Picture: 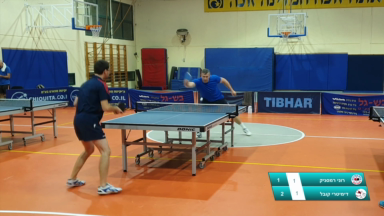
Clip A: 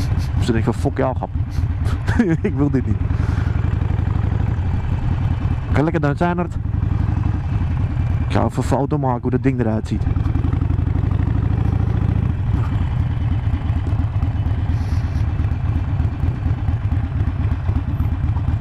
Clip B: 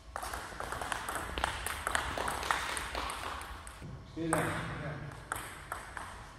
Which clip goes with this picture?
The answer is B